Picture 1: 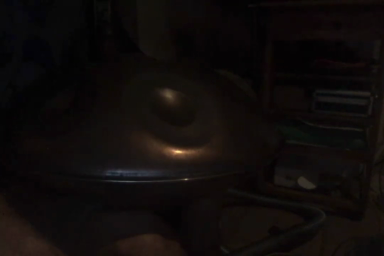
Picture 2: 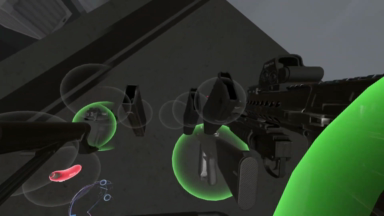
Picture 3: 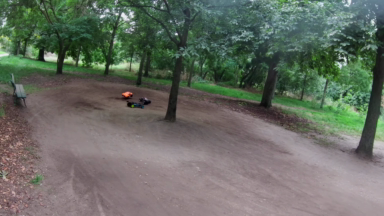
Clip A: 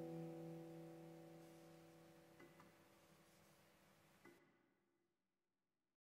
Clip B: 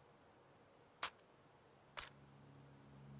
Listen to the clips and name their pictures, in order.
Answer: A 1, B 2